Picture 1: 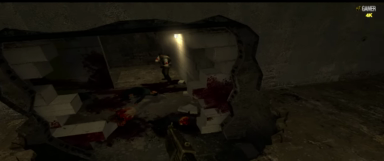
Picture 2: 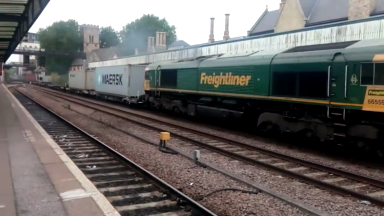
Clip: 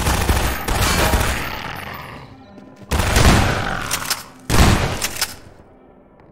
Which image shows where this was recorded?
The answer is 1